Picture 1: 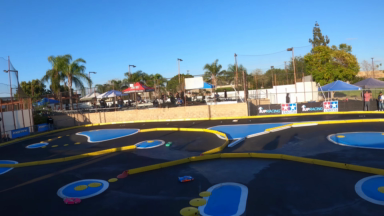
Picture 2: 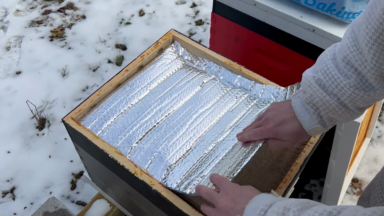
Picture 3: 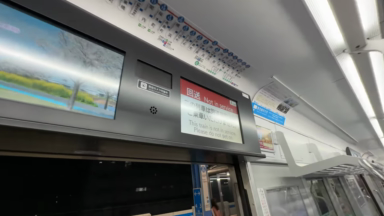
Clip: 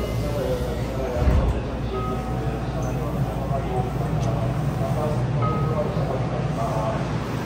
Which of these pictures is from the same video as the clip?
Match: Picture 3